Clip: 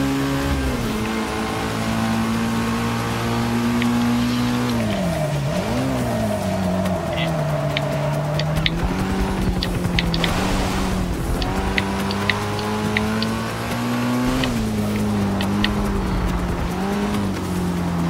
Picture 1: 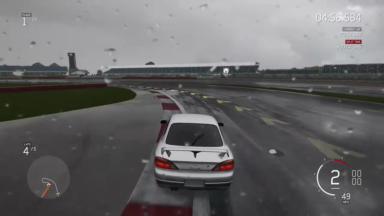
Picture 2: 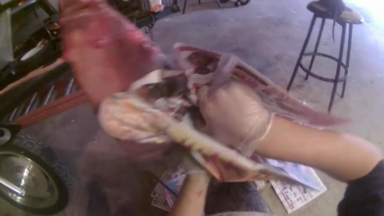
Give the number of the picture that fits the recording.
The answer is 1